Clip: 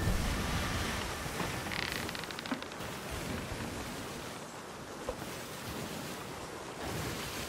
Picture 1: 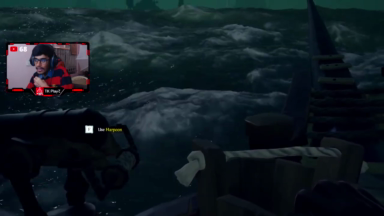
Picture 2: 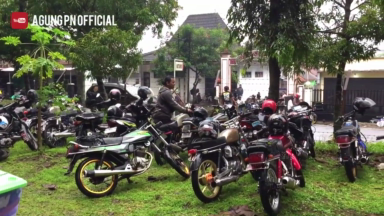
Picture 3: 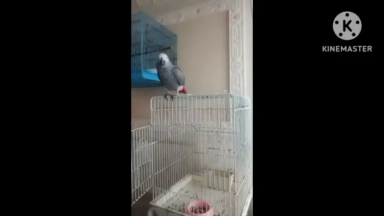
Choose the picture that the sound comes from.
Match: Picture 1